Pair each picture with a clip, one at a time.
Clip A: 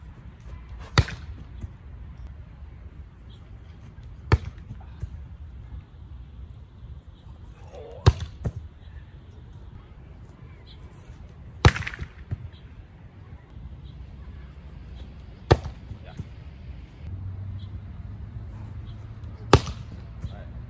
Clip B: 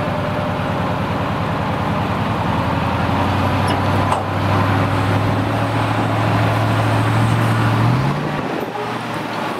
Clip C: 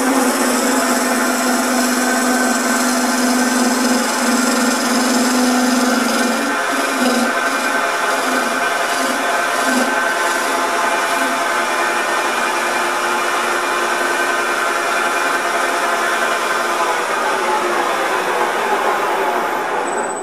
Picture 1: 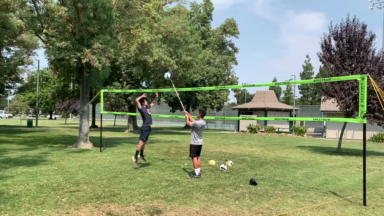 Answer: A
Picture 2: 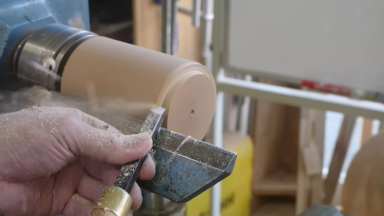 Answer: C